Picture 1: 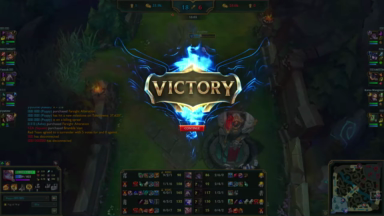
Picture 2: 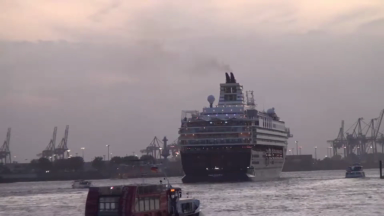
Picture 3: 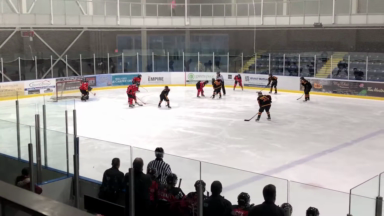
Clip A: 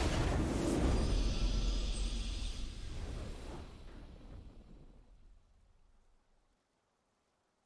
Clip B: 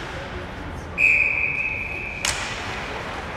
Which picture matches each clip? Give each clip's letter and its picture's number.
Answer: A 1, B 3